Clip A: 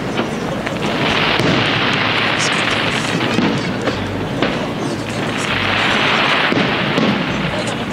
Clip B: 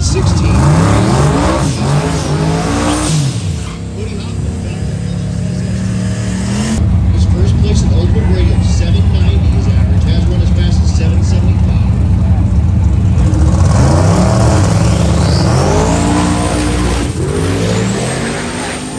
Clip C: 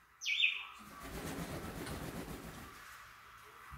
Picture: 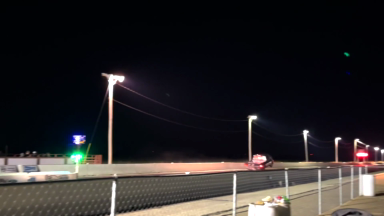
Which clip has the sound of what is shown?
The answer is B